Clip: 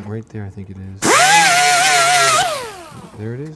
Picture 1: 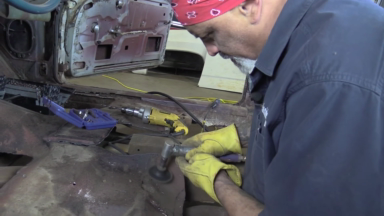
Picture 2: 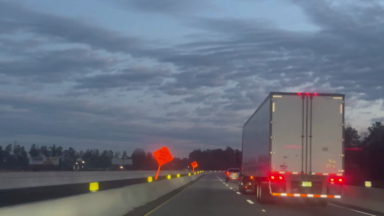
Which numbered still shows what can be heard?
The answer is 1